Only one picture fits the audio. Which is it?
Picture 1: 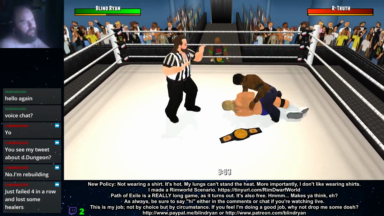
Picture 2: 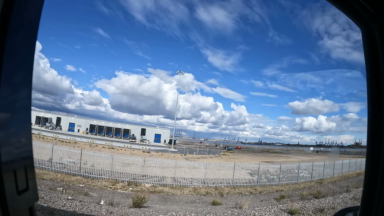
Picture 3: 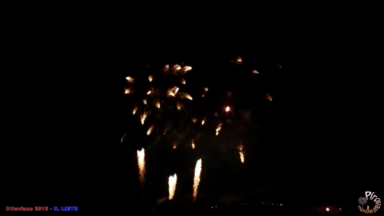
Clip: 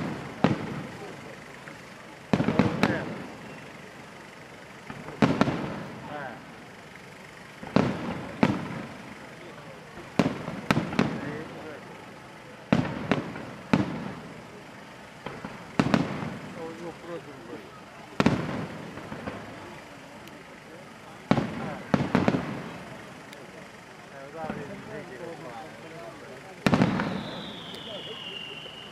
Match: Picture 3